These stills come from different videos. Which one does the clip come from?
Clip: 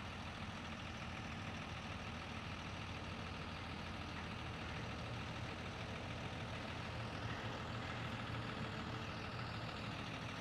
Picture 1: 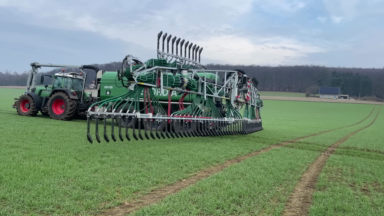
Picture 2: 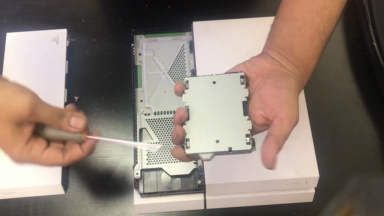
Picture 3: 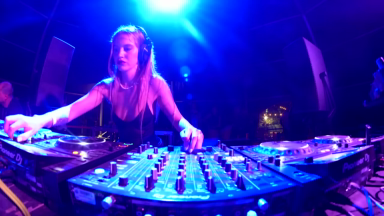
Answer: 1